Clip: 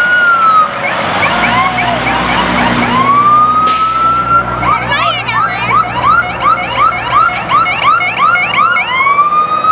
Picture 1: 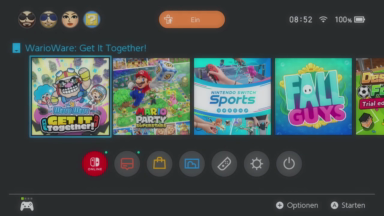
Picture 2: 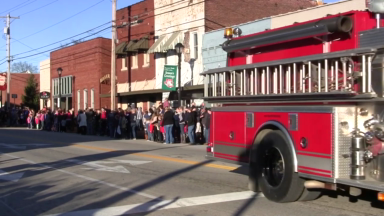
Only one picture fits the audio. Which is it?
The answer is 2